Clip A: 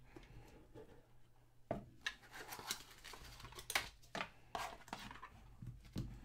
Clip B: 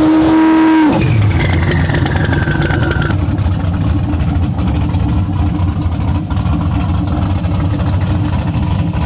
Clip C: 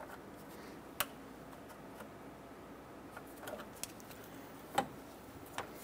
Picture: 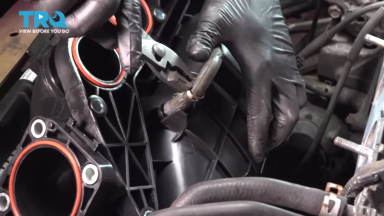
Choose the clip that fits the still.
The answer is C